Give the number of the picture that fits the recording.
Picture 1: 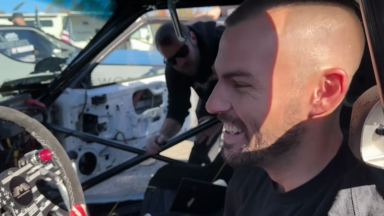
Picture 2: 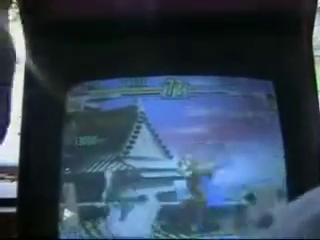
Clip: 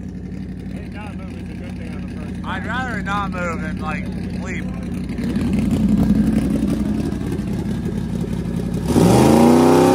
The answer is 1